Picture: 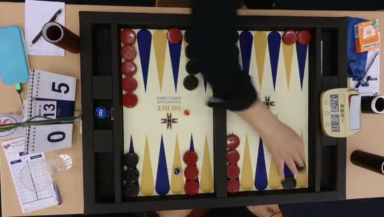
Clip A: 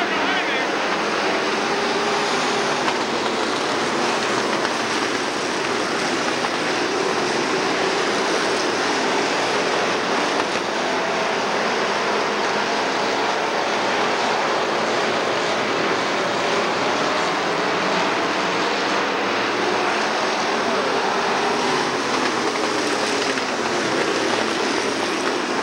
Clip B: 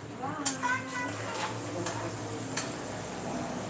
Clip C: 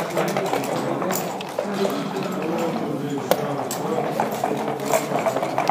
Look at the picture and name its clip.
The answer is C